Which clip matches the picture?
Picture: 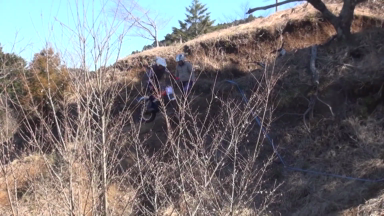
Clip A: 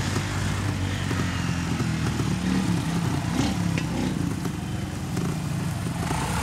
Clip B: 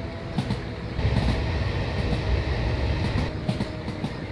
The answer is A